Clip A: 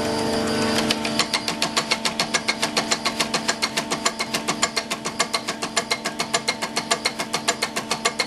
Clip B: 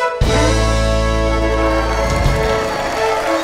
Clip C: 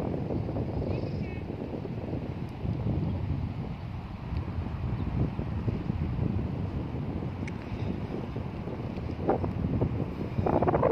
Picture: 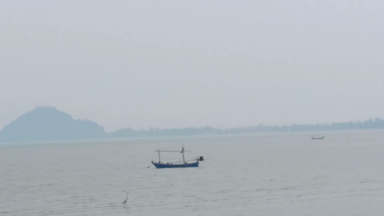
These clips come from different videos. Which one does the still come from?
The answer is C